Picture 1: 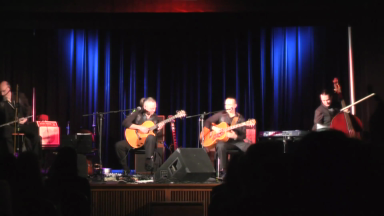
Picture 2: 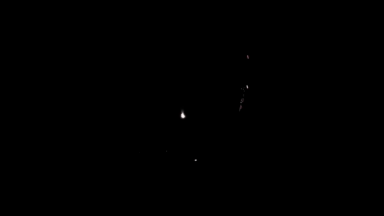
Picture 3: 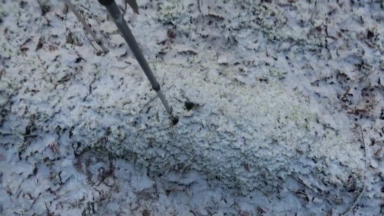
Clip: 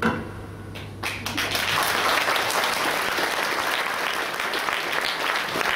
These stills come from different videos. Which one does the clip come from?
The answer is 1